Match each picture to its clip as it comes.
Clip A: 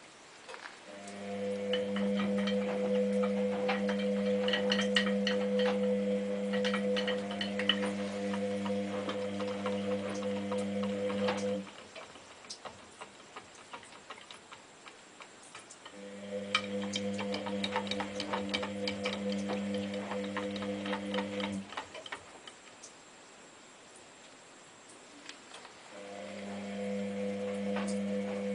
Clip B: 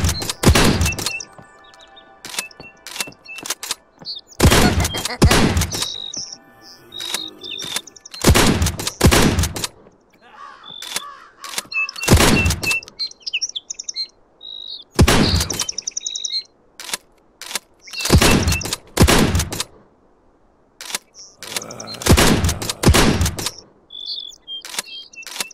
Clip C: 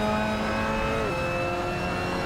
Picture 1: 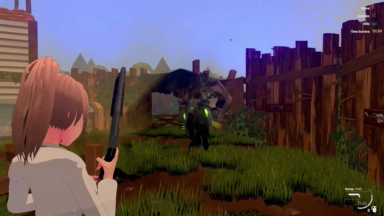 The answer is B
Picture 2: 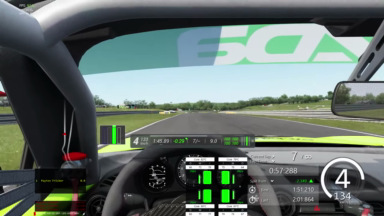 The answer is C